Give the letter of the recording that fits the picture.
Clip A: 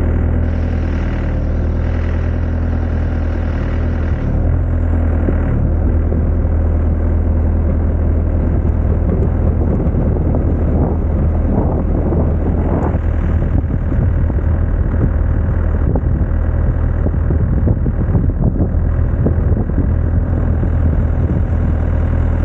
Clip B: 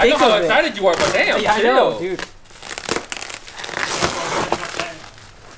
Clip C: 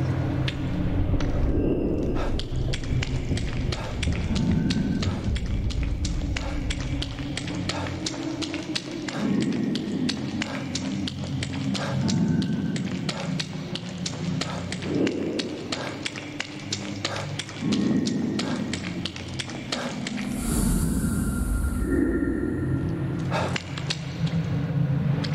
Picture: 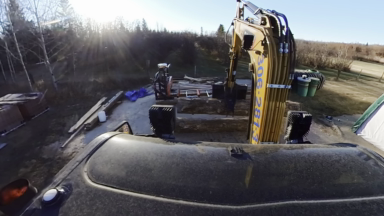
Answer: A